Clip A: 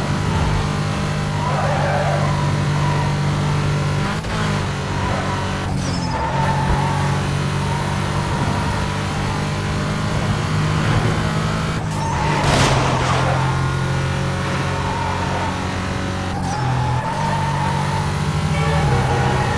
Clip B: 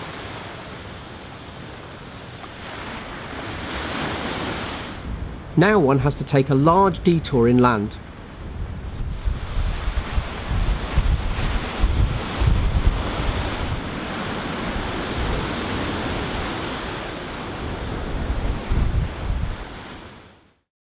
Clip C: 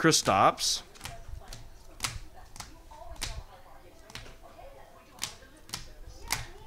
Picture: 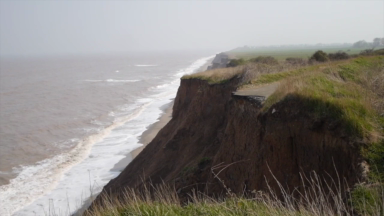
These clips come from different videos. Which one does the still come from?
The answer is B